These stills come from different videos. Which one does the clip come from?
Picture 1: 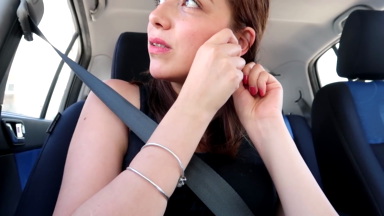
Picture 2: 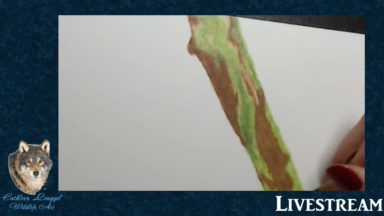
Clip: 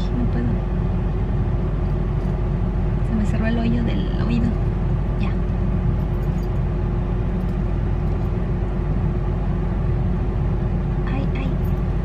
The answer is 1